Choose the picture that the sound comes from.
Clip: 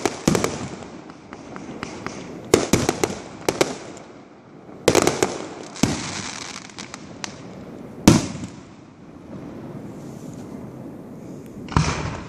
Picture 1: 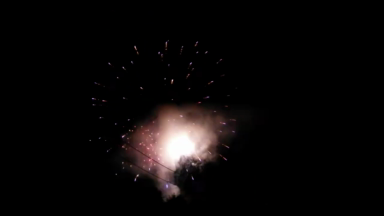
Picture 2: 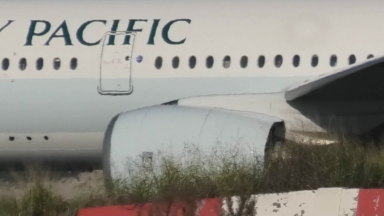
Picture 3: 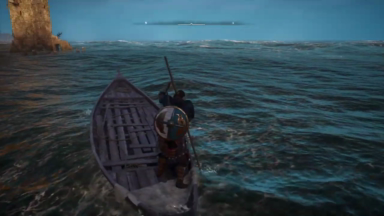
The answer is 1